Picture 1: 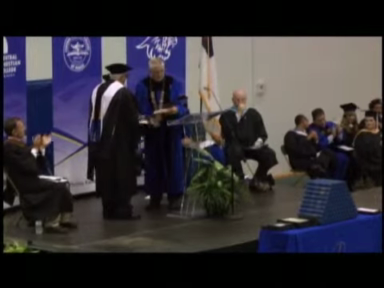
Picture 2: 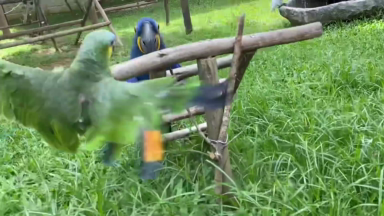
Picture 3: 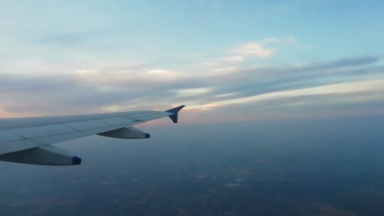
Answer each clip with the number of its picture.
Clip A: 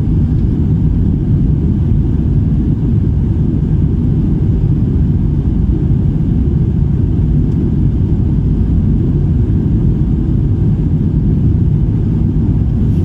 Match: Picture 3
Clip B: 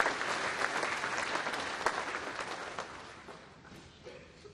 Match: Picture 1